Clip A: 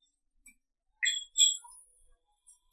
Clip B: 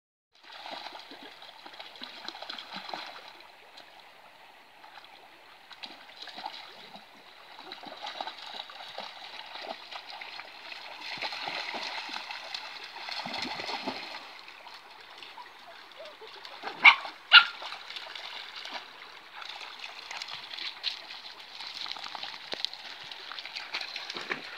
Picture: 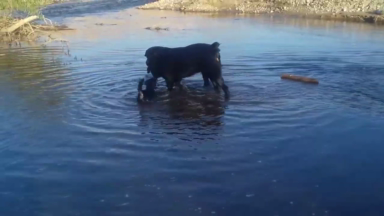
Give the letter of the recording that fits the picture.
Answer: B